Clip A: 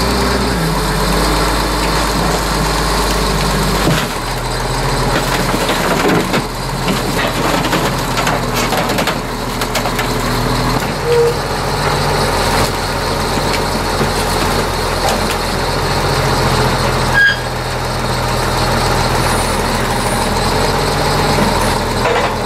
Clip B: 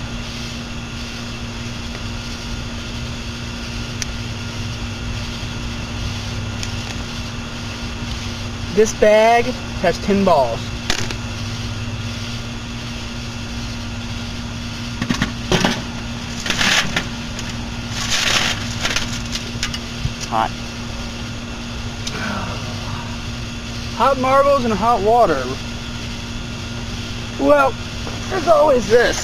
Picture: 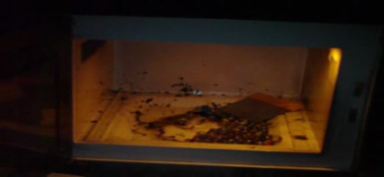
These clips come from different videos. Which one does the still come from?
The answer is B